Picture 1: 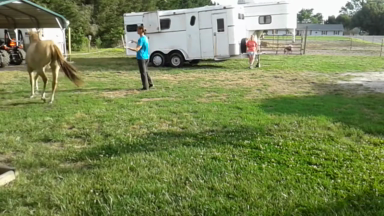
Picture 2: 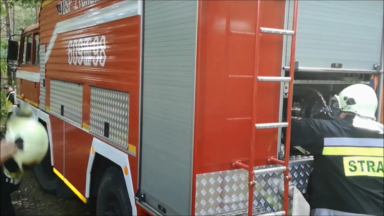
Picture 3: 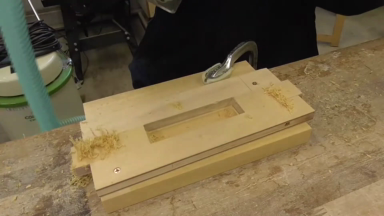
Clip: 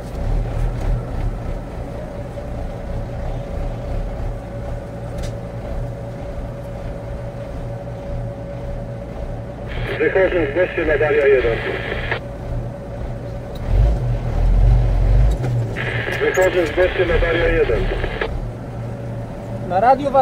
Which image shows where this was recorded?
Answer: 2